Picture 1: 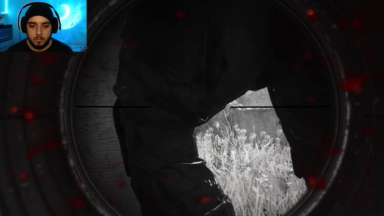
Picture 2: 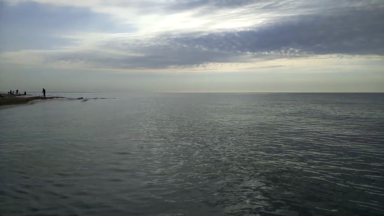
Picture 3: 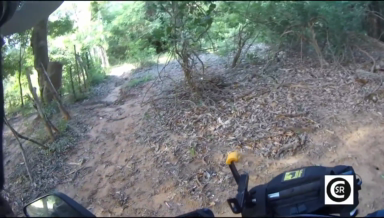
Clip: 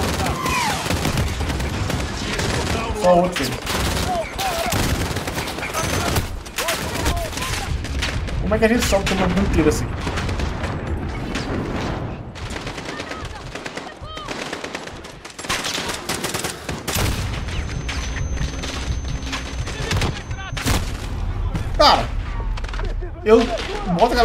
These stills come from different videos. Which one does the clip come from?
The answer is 1